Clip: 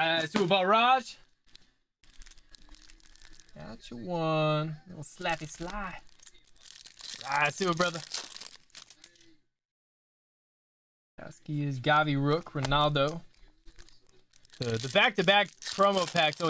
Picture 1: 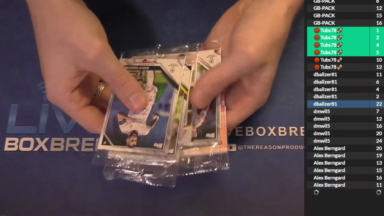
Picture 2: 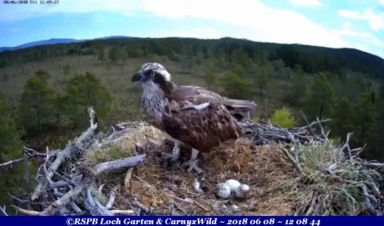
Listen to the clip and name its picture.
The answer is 1